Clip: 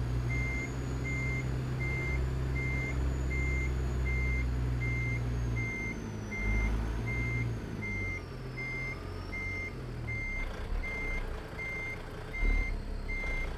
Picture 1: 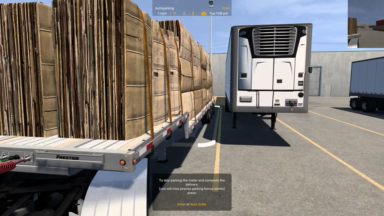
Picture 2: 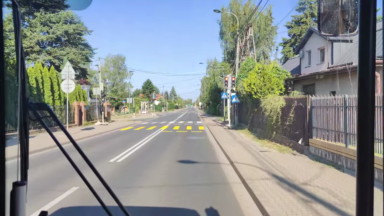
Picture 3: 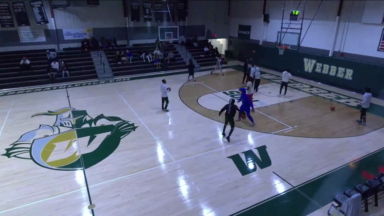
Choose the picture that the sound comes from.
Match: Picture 1